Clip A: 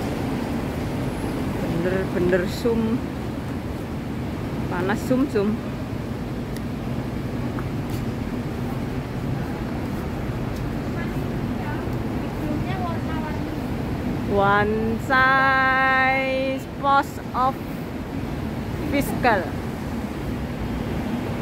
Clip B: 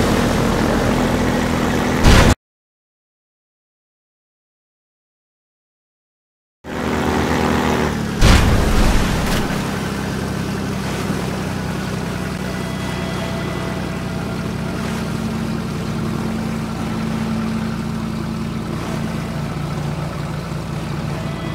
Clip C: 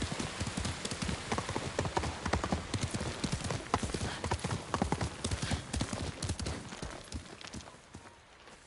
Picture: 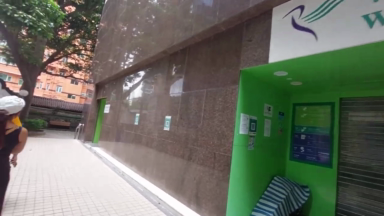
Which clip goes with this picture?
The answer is A